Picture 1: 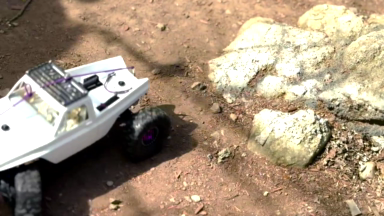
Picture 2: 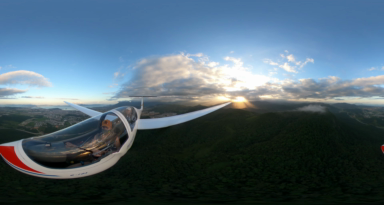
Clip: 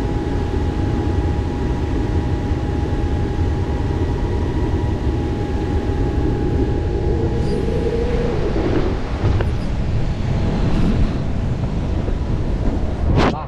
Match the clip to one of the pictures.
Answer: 2